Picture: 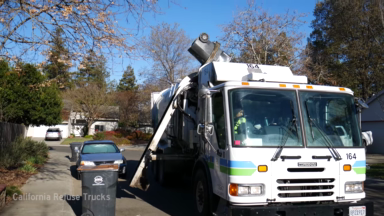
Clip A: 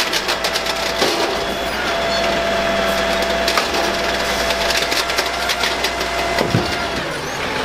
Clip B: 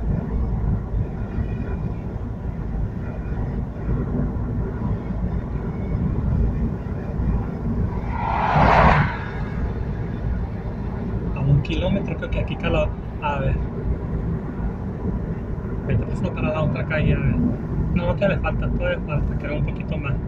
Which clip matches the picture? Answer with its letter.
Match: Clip A